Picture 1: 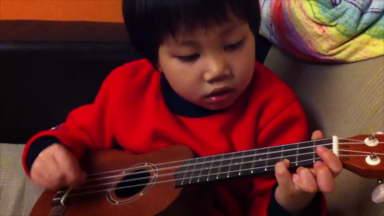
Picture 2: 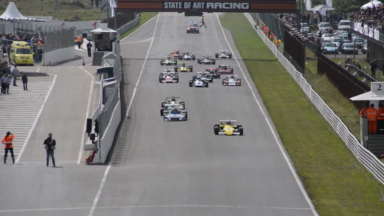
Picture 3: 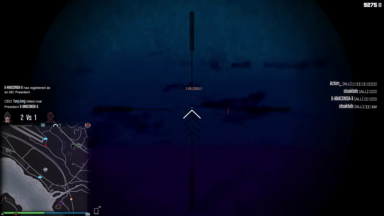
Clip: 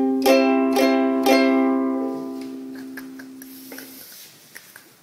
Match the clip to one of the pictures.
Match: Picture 1